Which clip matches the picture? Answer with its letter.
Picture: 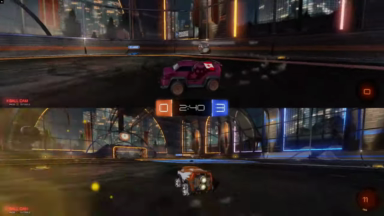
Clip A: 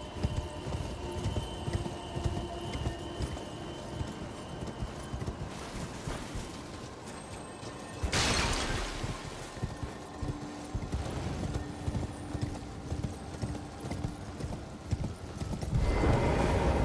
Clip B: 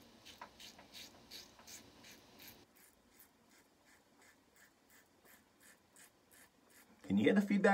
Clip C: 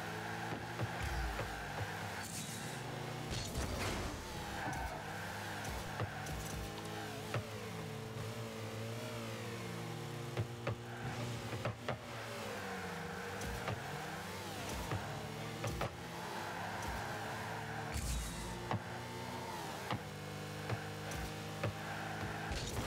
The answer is C